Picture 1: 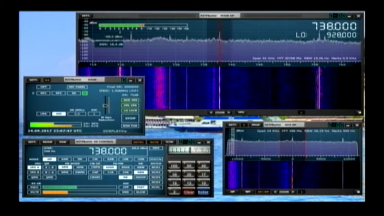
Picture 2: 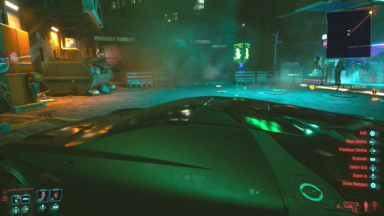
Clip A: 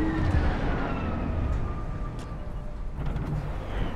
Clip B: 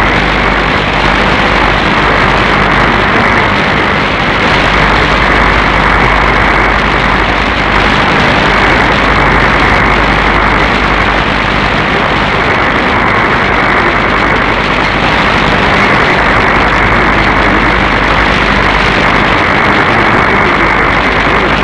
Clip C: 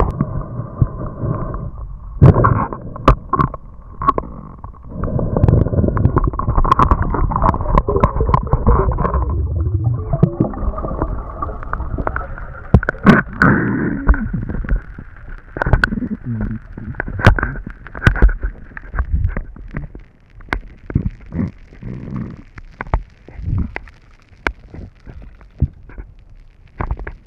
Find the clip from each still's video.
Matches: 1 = B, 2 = A